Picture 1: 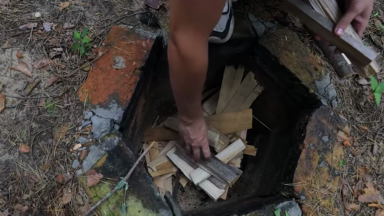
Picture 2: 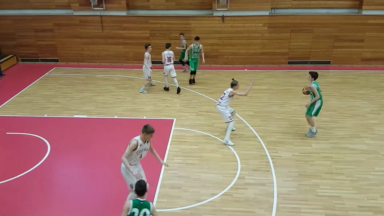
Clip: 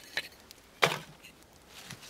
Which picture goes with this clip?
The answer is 1